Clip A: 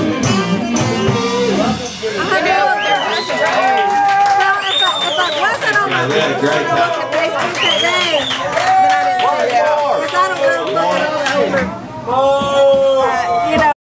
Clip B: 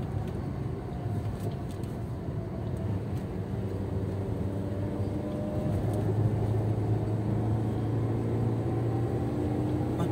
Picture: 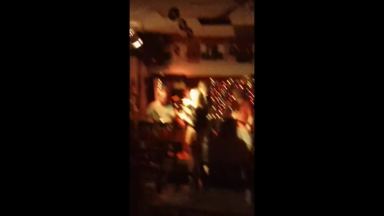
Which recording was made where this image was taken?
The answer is A